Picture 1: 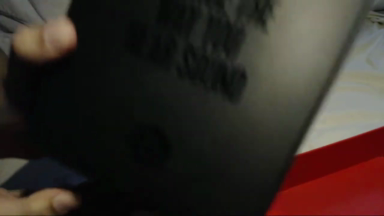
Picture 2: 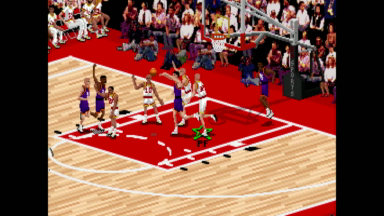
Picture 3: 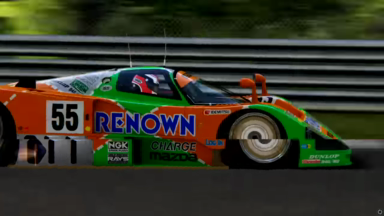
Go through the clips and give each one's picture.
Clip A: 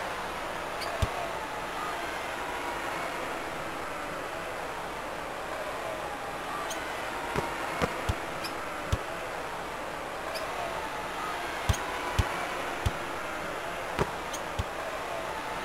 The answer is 2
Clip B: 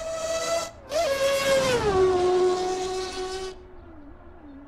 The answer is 3